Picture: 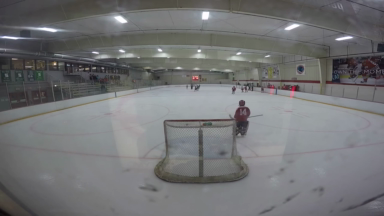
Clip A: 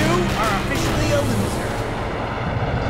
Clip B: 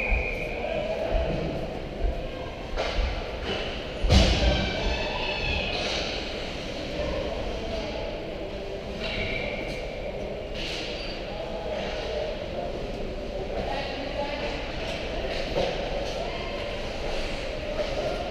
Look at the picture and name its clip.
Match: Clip B